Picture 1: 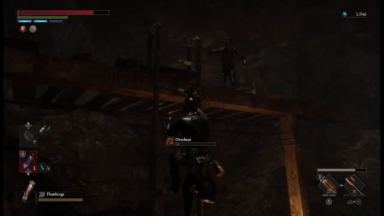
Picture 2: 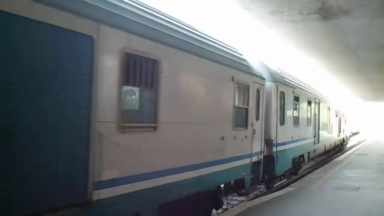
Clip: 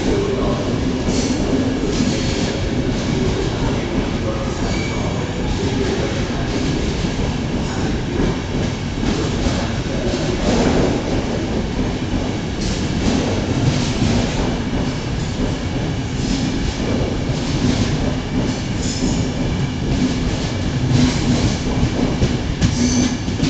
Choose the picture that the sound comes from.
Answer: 2